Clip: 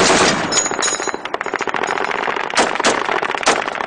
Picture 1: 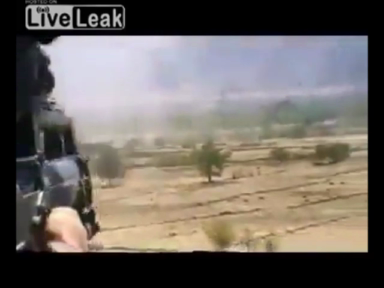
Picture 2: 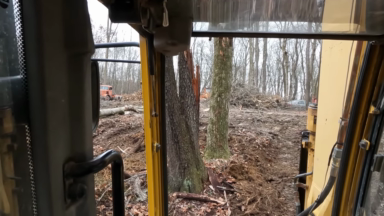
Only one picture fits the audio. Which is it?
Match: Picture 1